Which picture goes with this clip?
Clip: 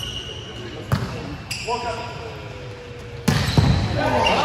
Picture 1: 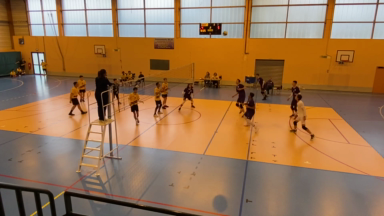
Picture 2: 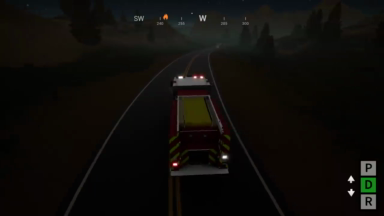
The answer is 1